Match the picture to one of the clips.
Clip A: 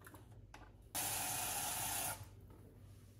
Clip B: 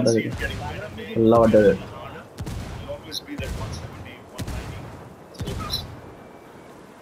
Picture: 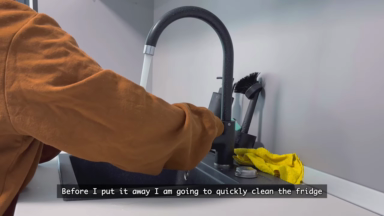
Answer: A